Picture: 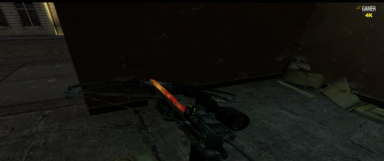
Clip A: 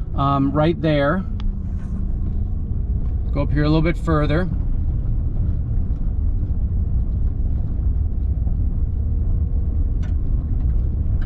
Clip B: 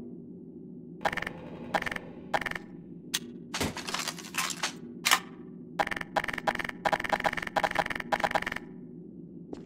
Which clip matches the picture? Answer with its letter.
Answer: B